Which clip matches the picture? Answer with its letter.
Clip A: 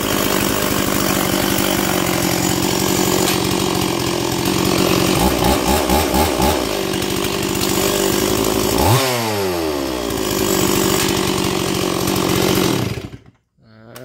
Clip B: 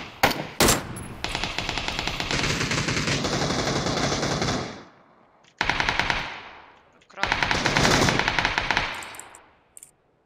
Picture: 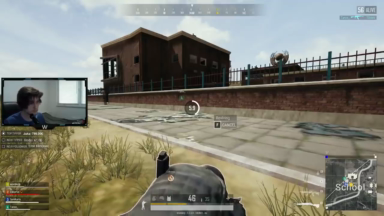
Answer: B